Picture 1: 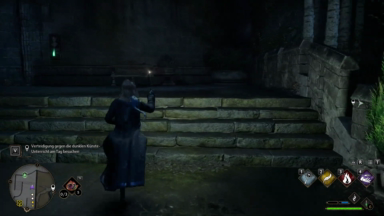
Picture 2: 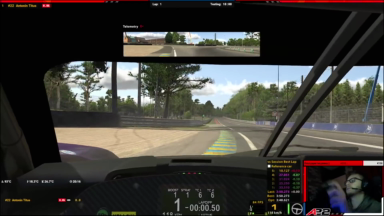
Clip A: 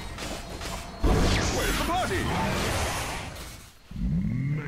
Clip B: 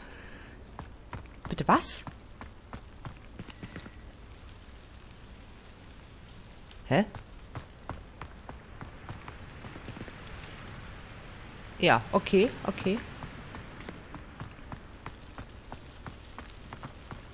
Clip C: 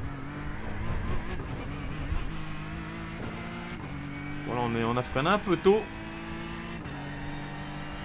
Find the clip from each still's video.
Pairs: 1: B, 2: C